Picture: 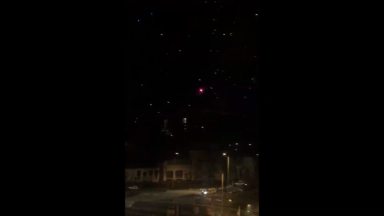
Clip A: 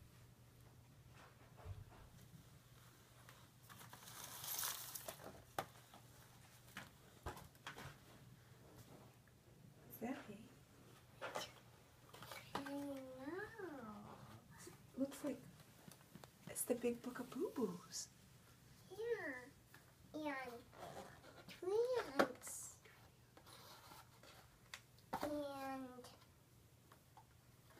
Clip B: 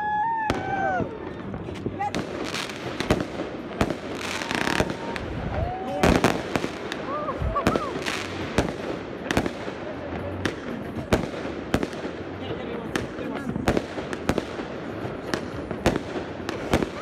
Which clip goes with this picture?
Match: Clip B